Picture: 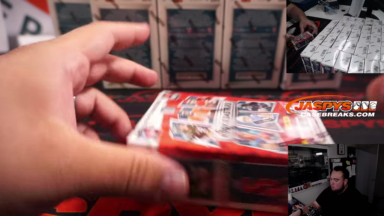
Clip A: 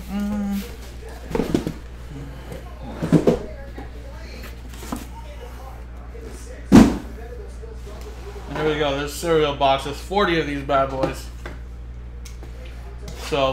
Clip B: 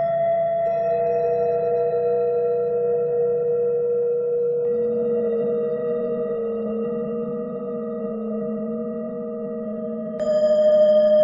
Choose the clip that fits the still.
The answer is A